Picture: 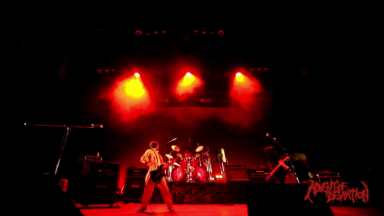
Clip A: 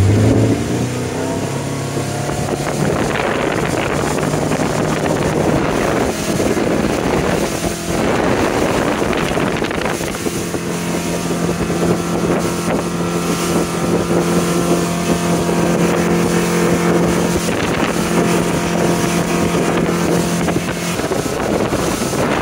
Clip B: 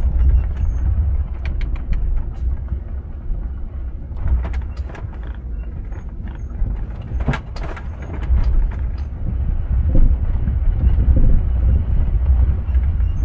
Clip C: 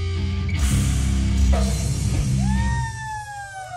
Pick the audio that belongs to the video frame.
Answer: C